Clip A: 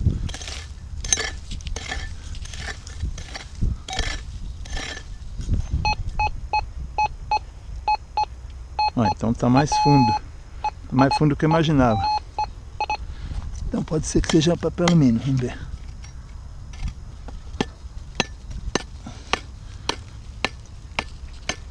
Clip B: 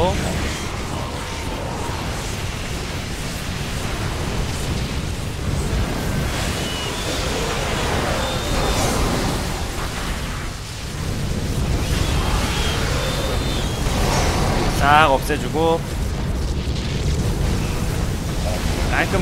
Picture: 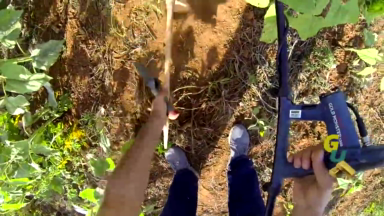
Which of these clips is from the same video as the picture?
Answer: A